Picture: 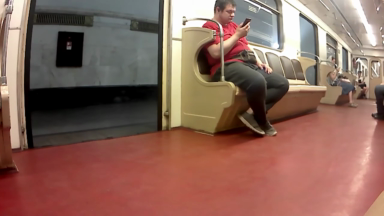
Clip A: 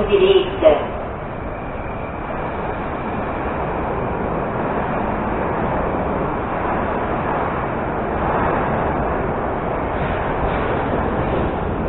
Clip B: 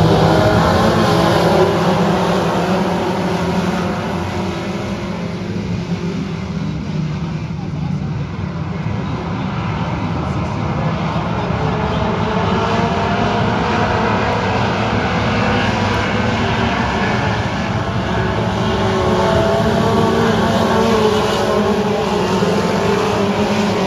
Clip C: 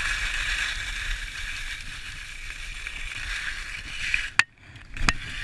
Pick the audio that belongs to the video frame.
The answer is A